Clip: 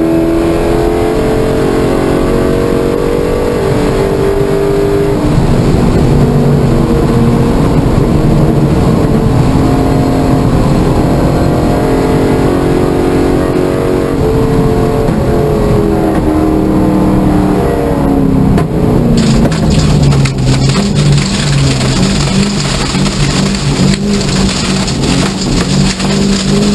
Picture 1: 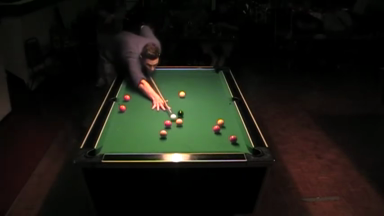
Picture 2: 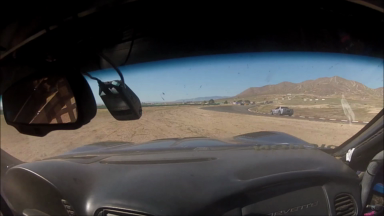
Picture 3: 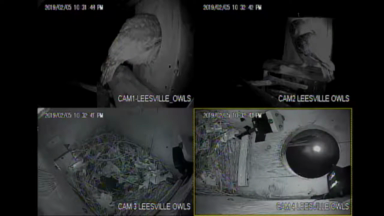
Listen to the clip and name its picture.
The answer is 2